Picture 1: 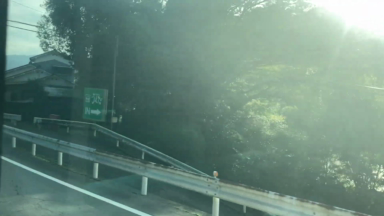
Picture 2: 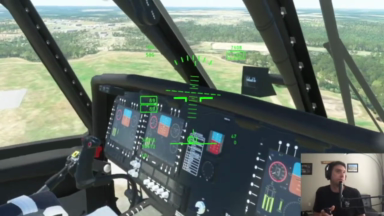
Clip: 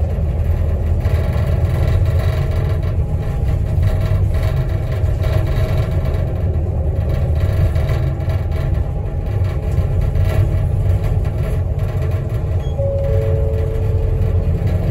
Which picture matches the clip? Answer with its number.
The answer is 1